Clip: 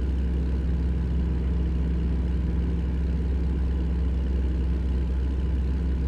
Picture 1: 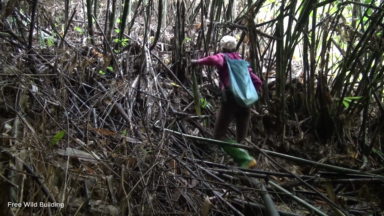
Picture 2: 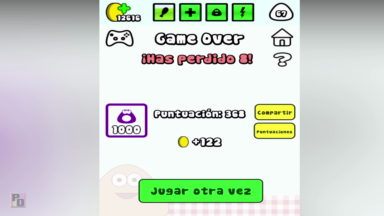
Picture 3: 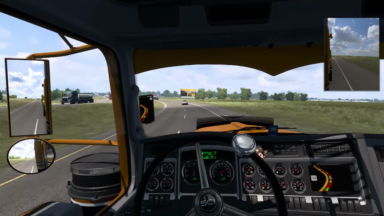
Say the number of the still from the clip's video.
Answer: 3